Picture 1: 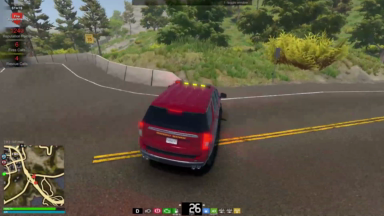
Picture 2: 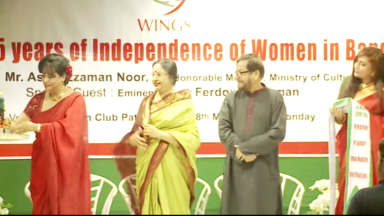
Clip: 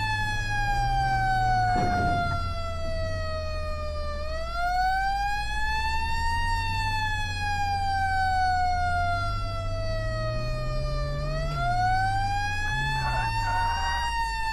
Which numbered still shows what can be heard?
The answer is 1